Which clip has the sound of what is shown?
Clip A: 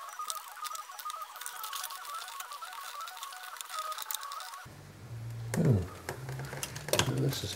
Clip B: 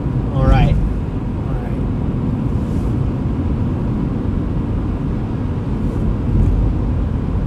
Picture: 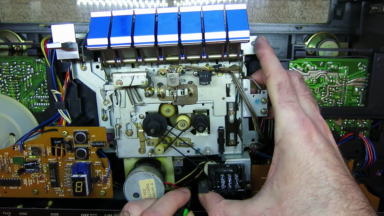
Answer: A